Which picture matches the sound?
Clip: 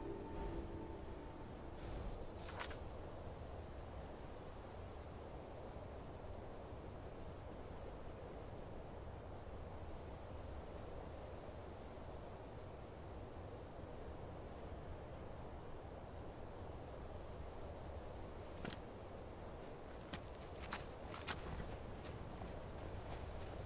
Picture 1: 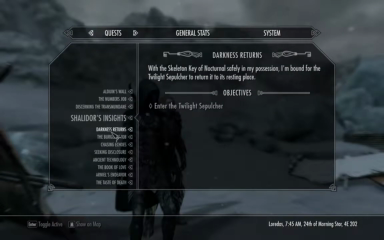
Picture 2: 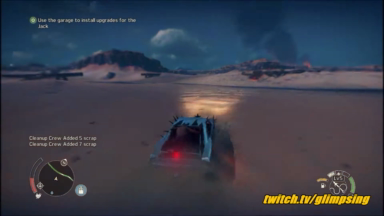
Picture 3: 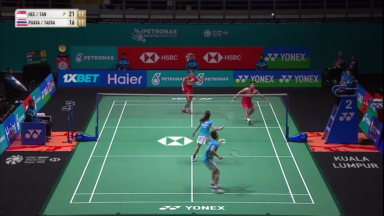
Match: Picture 1